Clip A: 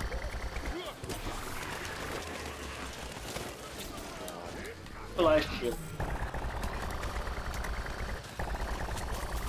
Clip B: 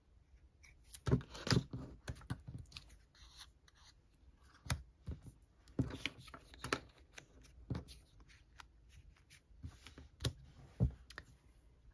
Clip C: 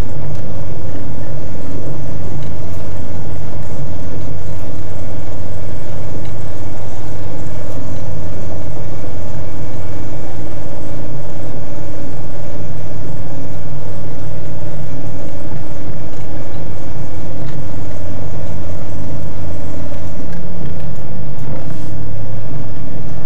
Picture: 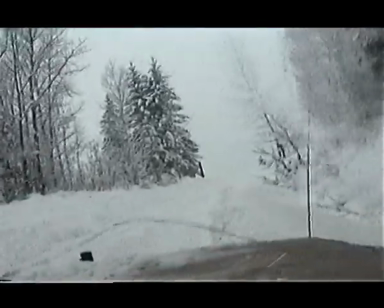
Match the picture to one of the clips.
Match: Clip C